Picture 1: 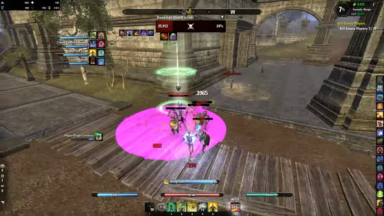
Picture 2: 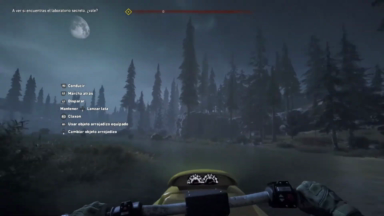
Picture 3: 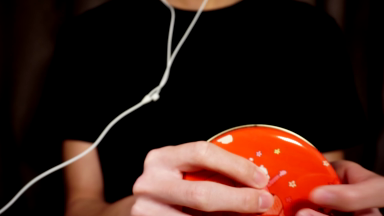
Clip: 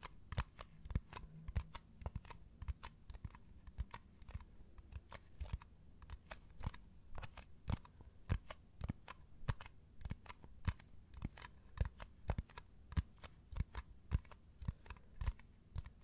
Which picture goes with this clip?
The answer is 3